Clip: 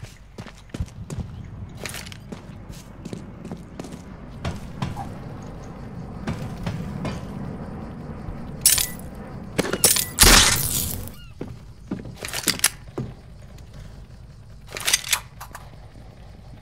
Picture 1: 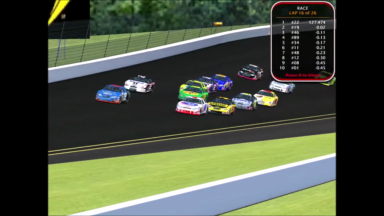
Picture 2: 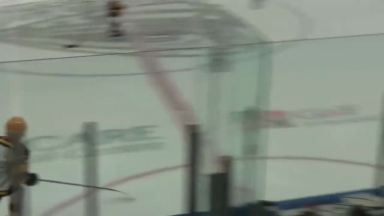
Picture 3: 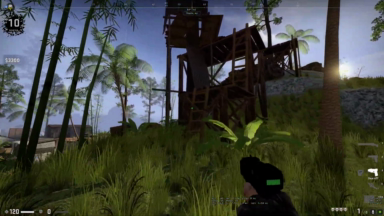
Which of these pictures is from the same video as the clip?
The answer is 3